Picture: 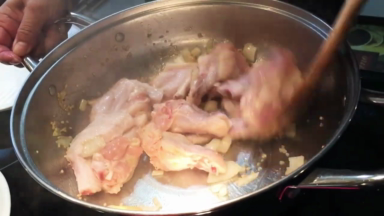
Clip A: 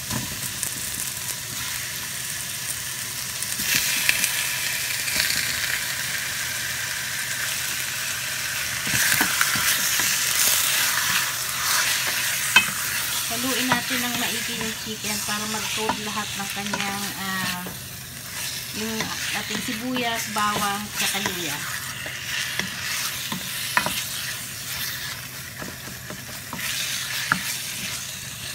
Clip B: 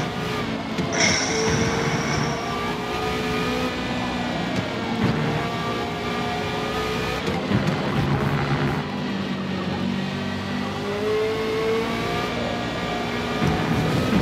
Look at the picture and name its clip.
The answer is A